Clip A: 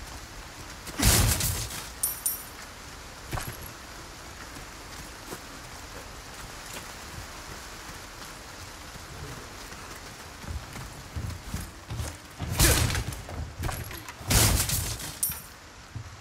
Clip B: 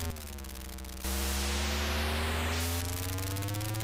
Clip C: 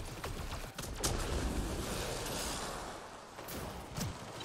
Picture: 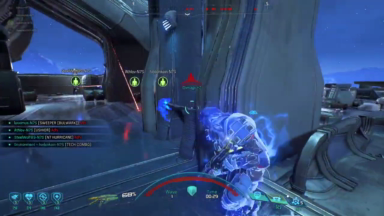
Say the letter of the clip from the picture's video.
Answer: C